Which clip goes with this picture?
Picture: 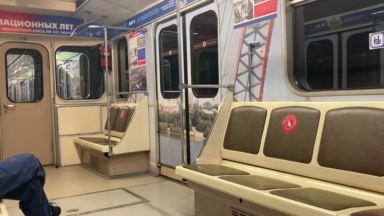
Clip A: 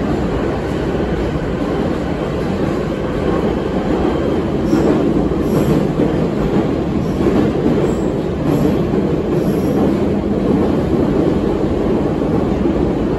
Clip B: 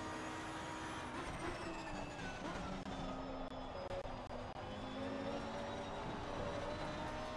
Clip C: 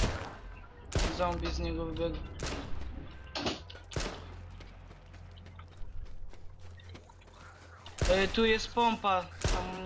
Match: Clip A